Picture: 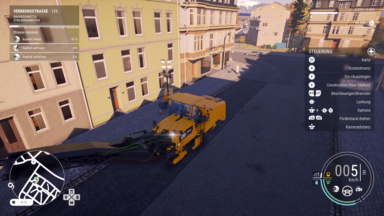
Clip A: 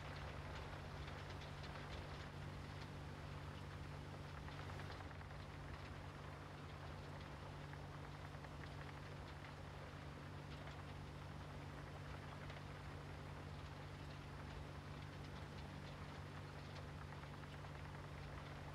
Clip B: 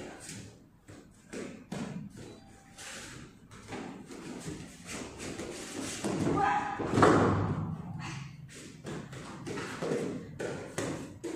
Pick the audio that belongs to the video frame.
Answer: A